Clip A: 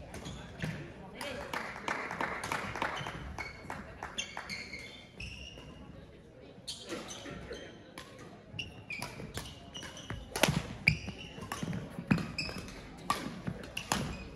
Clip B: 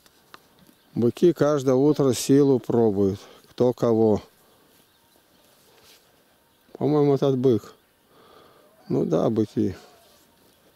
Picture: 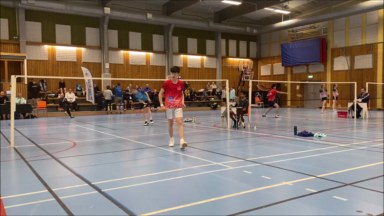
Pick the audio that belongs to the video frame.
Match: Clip A